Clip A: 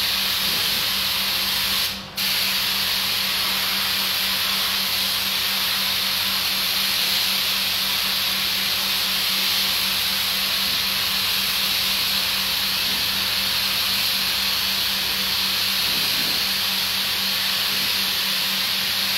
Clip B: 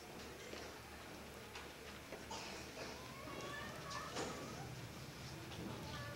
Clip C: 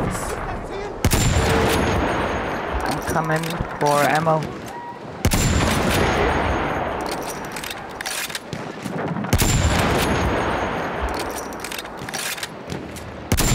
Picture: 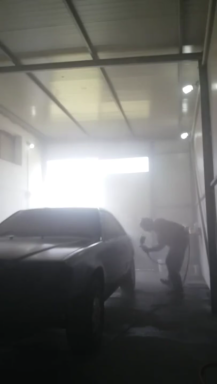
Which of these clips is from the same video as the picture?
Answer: A